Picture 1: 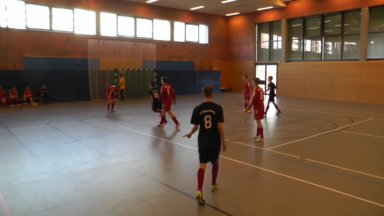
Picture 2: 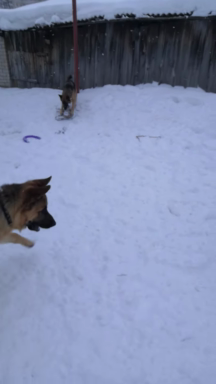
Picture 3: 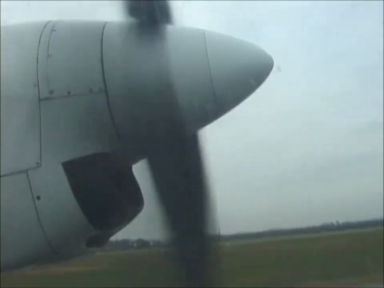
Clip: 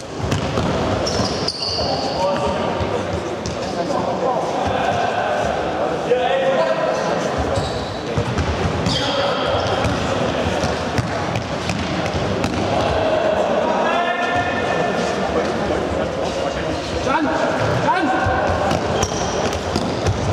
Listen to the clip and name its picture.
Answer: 1